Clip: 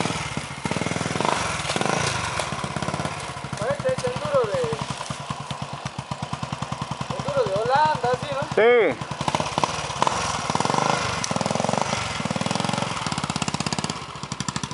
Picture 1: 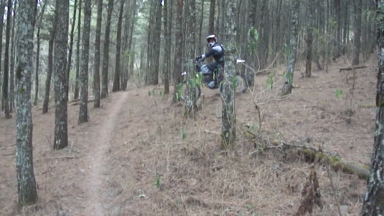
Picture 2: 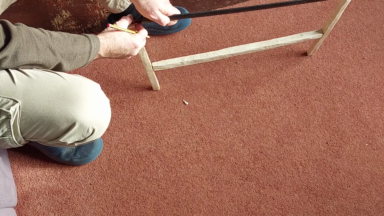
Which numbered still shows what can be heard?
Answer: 1